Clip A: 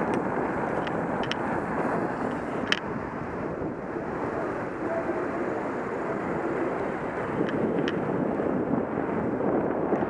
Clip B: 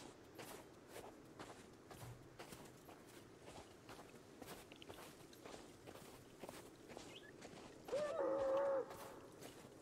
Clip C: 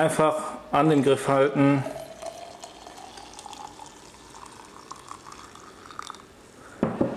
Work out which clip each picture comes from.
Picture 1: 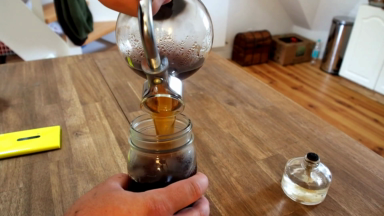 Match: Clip C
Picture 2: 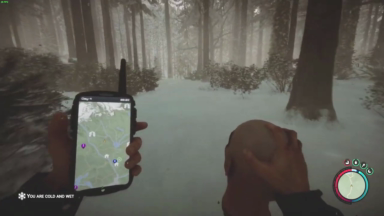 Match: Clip B